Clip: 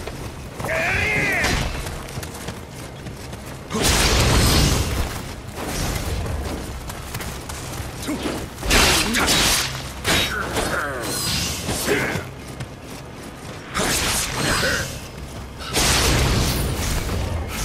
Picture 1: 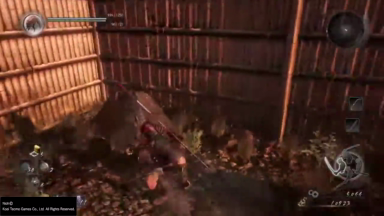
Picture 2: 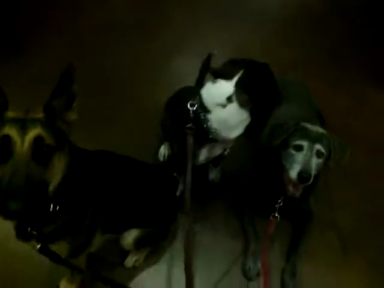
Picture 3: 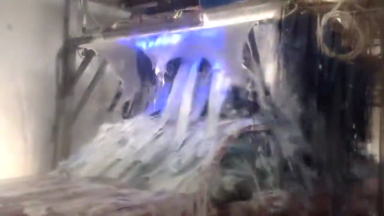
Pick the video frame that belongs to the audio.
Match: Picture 1